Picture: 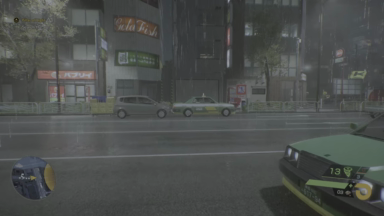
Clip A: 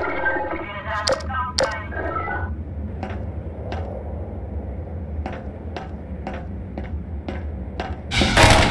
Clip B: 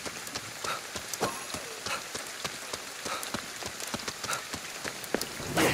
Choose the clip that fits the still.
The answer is B